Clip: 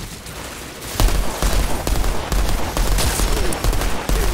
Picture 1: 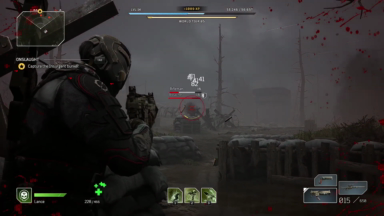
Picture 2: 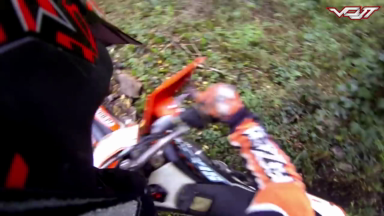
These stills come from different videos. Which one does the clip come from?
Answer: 1